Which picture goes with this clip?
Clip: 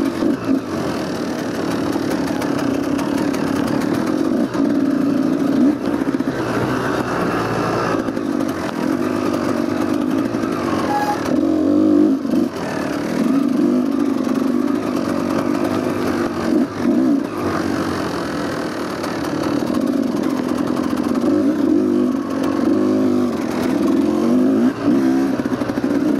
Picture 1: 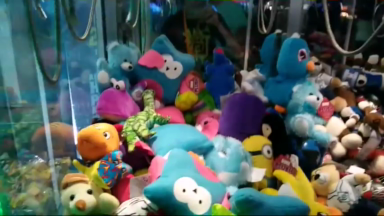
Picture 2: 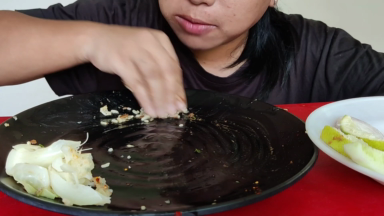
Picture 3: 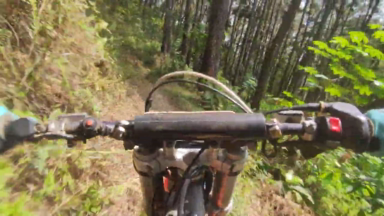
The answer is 3